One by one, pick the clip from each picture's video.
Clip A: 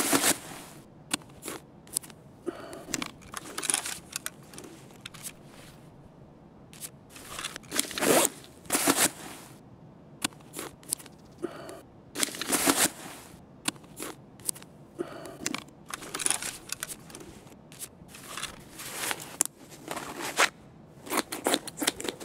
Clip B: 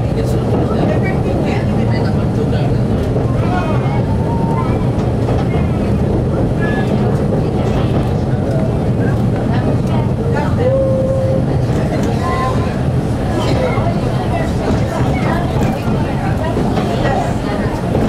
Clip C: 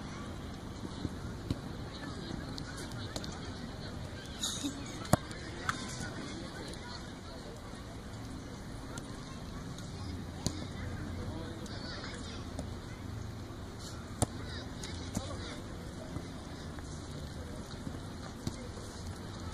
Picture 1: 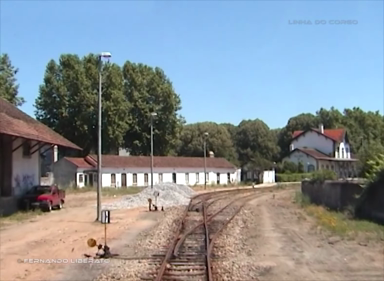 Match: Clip B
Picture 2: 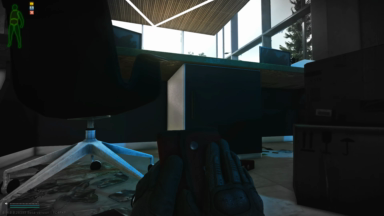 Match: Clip A